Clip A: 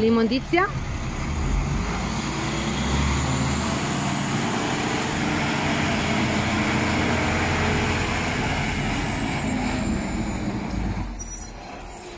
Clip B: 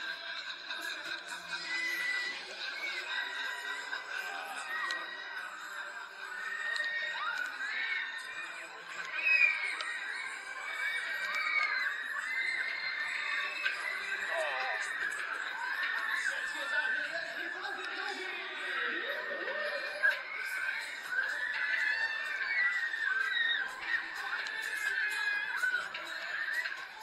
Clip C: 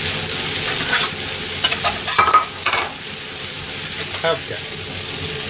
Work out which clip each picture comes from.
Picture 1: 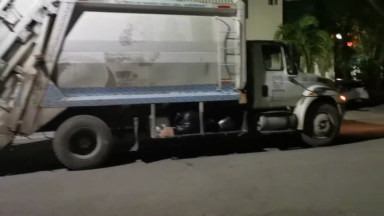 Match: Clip A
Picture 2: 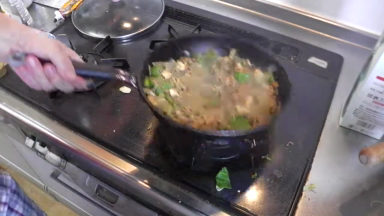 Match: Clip C